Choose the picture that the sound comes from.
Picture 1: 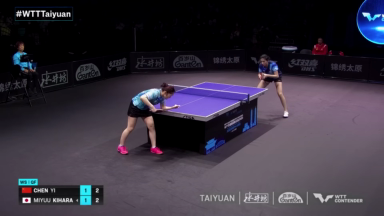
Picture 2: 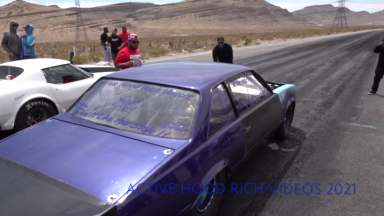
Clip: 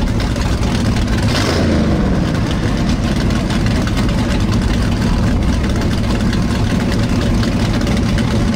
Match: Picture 2